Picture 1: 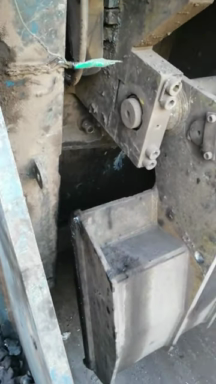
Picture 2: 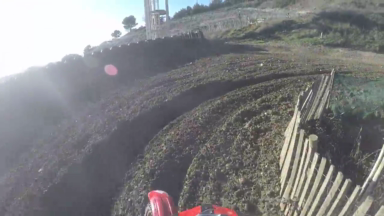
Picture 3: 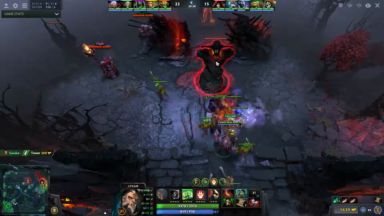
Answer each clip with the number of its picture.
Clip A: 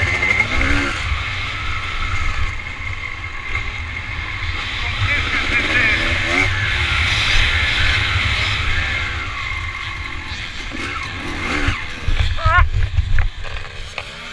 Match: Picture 2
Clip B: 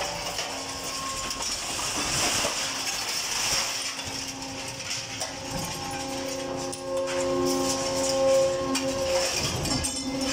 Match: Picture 1